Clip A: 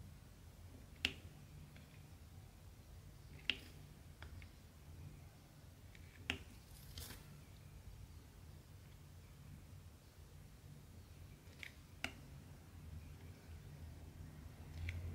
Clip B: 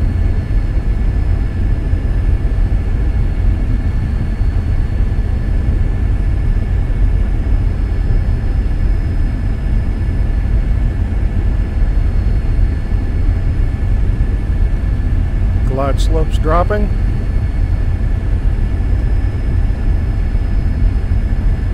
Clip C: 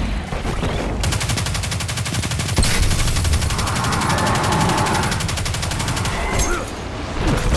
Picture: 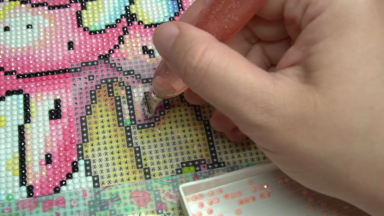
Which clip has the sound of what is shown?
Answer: A